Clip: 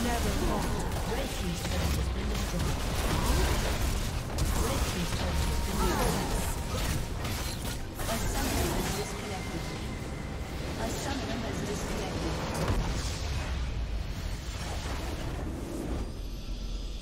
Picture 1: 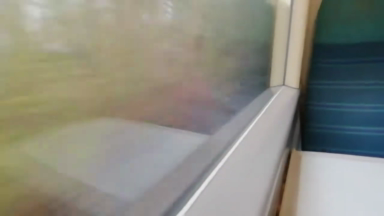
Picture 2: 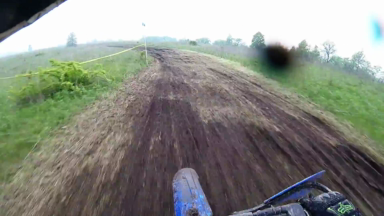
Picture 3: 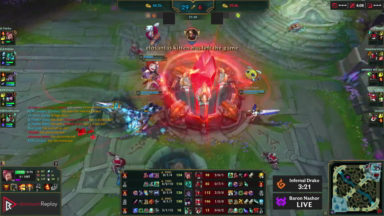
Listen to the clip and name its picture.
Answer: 3